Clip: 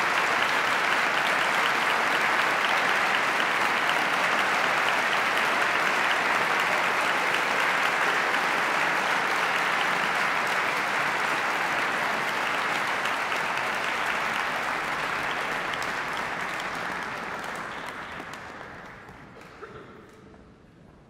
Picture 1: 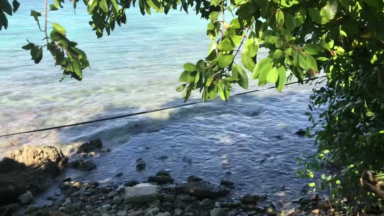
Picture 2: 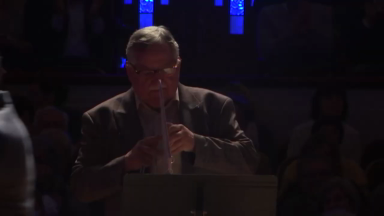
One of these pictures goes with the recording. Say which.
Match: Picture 2